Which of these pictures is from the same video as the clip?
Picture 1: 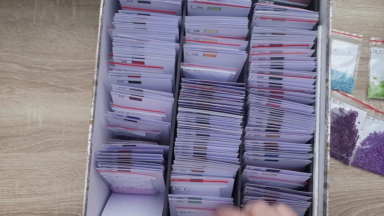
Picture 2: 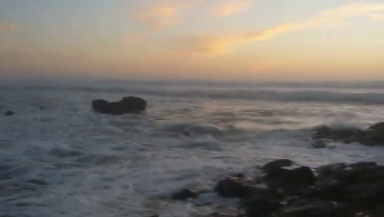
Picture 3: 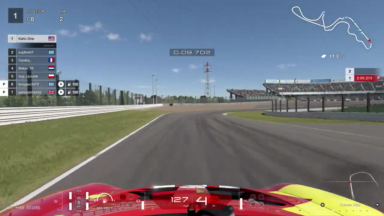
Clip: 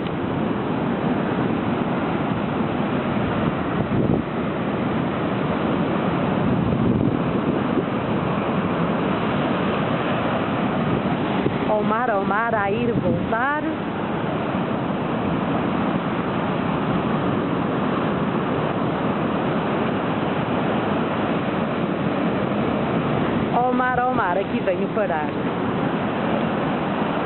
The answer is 2